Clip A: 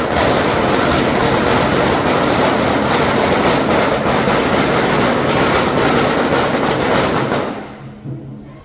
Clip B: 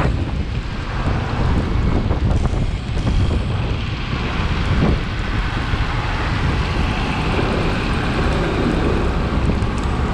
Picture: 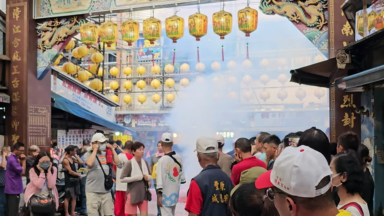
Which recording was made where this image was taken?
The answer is A